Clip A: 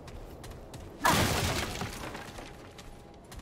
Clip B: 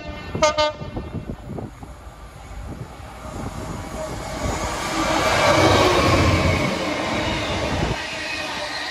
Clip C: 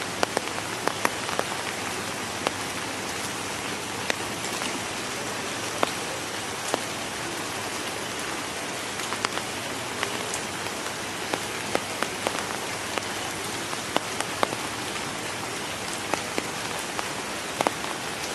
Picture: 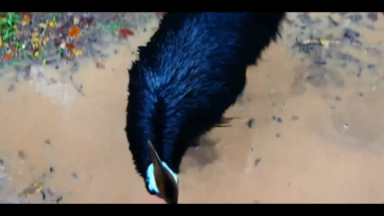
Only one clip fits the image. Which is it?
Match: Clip C